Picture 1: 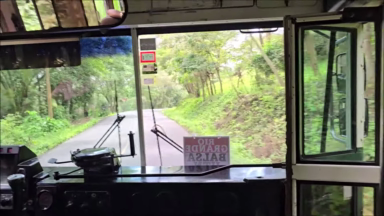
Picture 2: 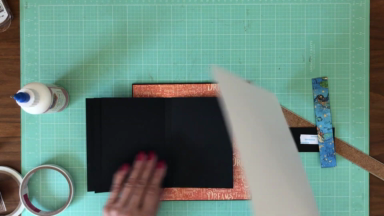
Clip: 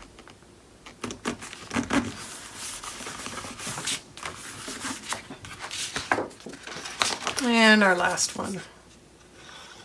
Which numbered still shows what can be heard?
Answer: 2